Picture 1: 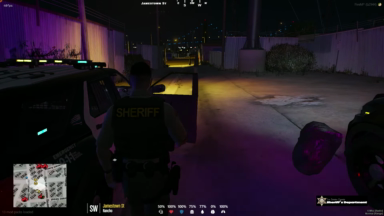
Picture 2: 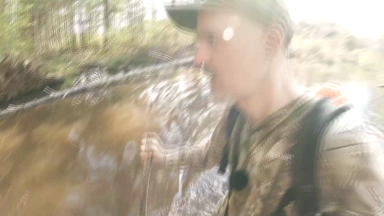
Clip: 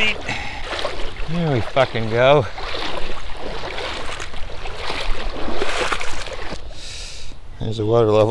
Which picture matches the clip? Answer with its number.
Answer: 2